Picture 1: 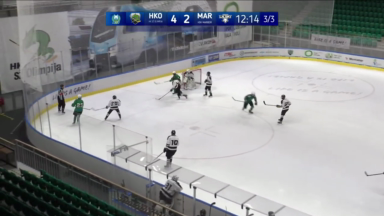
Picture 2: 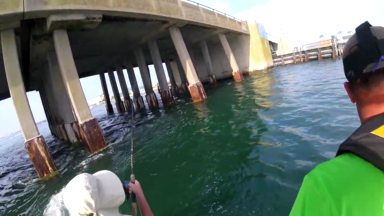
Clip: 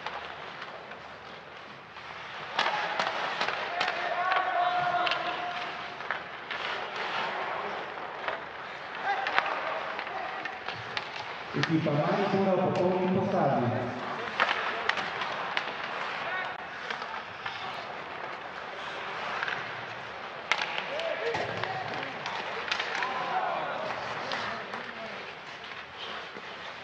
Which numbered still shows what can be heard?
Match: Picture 1